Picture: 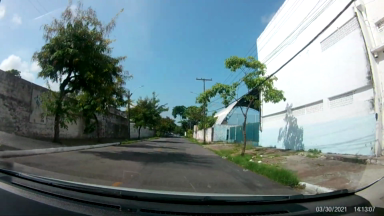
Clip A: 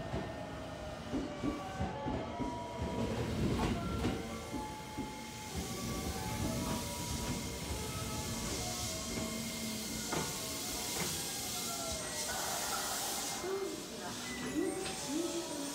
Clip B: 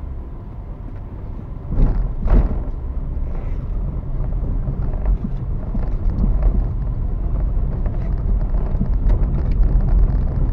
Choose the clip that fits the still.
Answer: B